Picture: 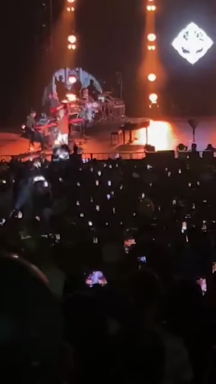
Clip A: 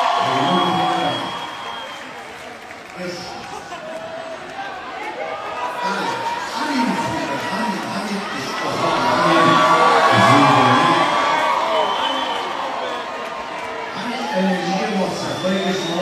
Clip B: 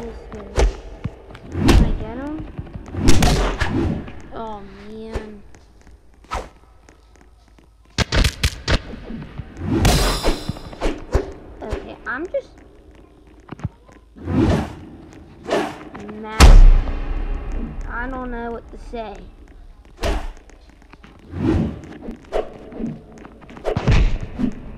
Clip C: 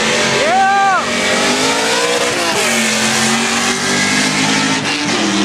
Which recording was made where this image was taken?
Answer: A